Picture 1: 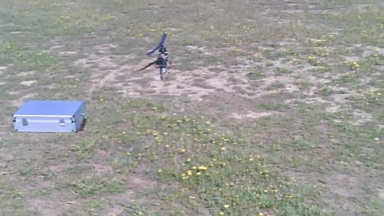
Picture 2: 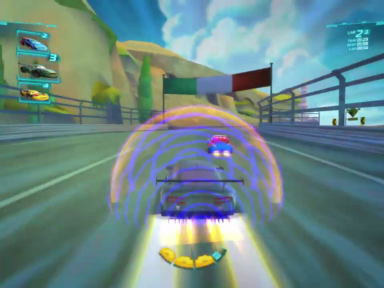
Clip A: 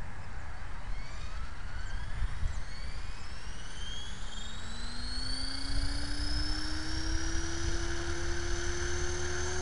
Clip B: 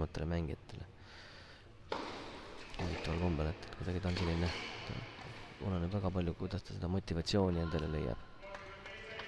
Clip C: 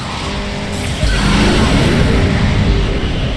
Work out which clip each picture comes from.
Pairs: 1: A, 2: C